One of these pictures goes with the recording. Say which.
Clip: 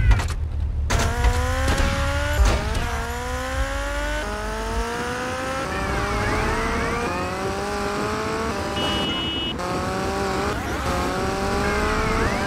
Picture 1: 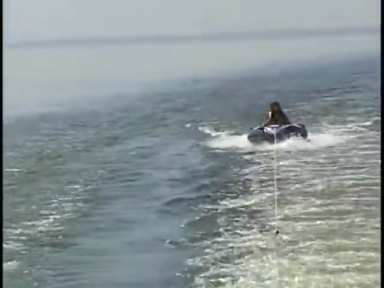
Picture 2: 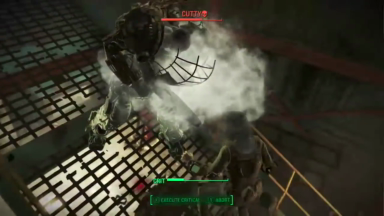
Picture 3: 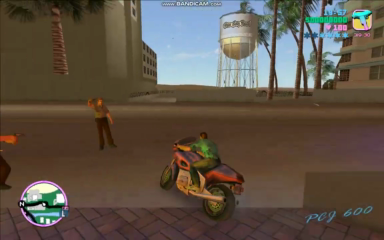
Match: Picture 3